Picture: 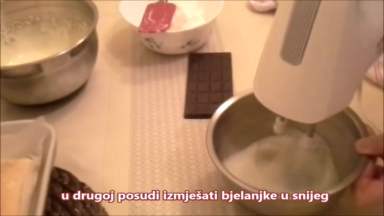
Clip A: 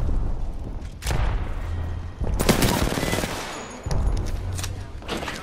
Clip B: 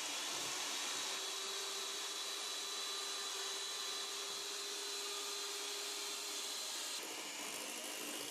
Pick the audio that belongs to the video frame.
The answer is B